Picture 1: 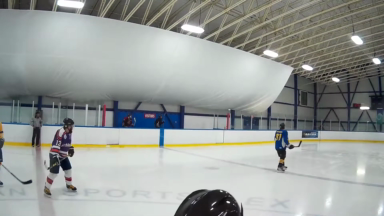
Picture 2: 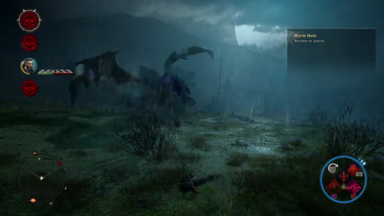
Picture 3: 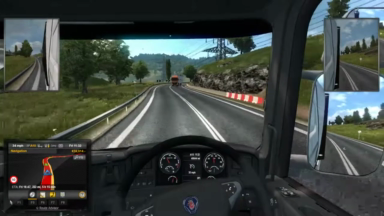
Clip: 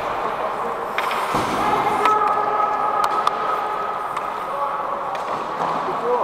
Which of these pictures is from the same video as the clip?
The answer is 1